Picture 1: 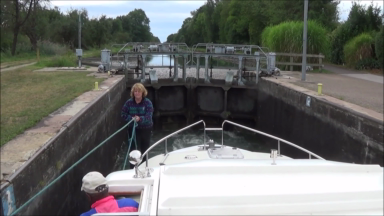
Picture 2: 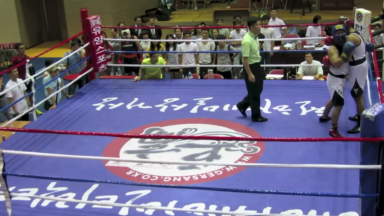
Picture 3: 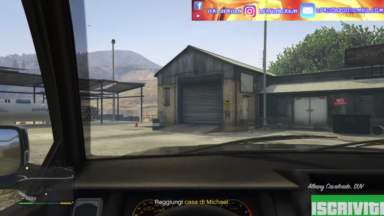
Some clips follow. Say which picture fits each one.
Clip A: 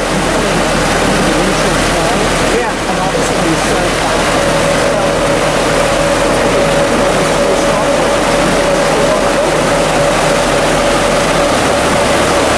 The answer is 1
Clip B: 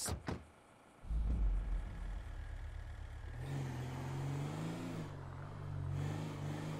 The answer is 3